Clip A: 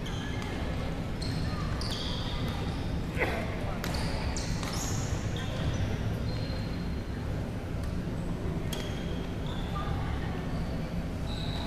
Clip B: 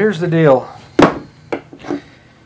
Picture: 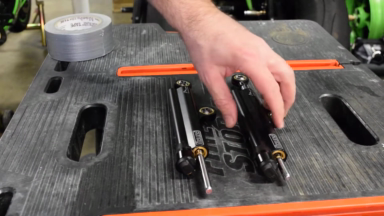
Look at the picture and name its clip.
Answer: B